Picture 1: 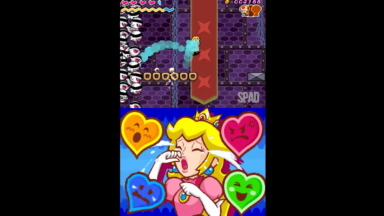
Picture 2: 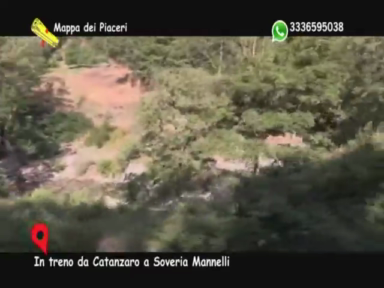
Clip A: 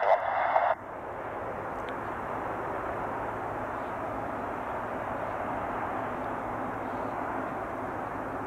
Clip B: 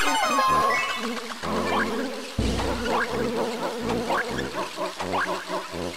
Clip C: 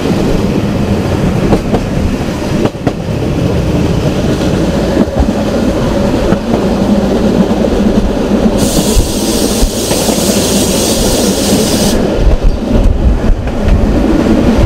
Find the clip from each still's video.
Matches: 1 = B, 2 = C